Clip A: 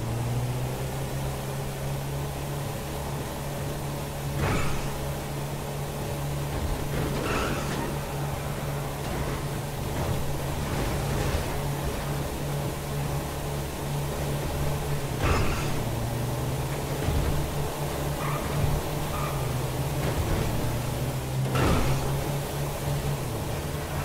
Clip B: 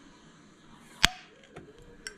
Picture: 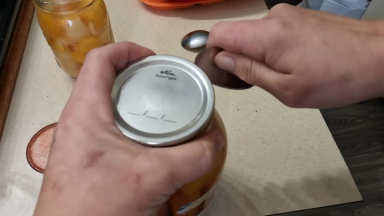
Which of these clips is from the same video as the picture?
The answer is B